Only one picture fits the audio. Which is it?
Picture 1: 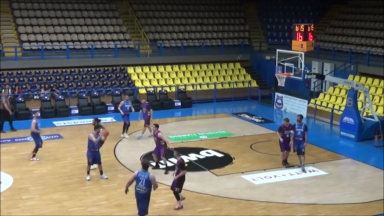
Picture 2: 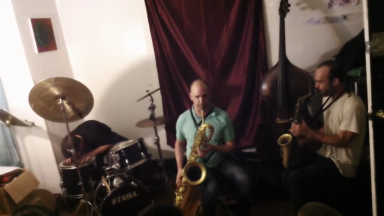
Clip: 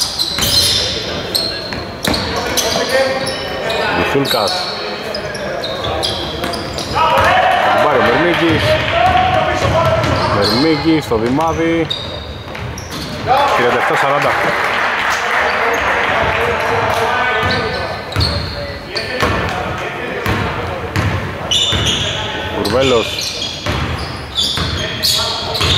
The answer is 1